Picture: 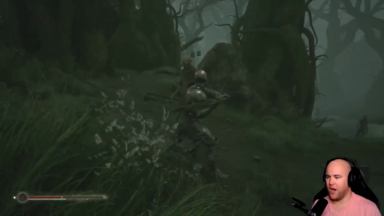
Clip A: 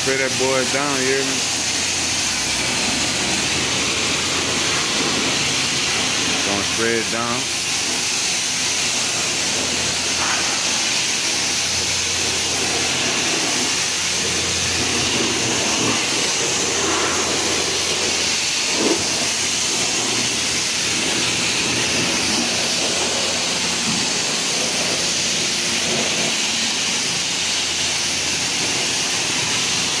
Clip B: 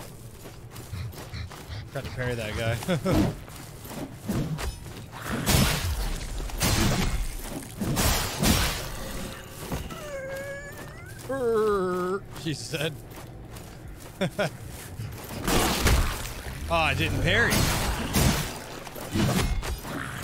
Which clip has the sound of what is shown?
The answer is B